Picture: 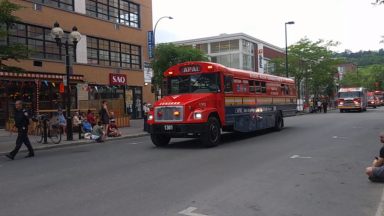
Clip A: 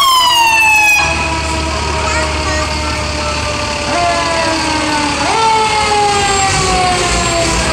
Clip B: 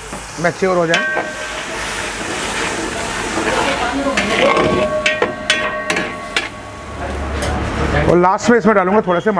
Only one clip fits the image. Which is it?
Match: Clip A